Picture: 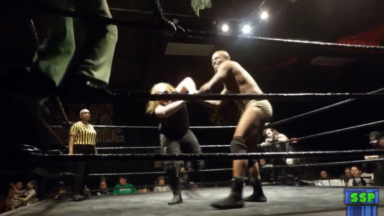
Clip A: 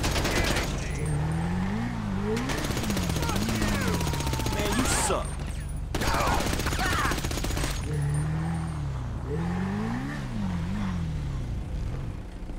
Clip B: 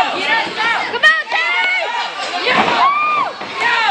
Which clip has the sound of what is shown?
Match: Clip B